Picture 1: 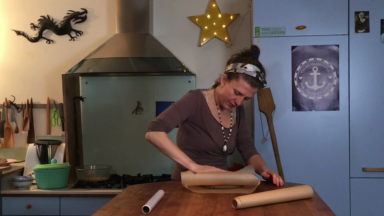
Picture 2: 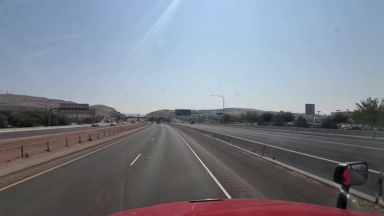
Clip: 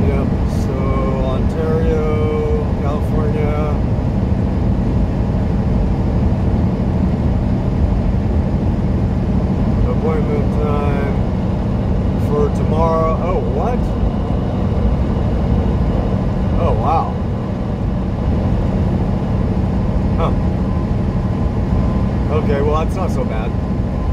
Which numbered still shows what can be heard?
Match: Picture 2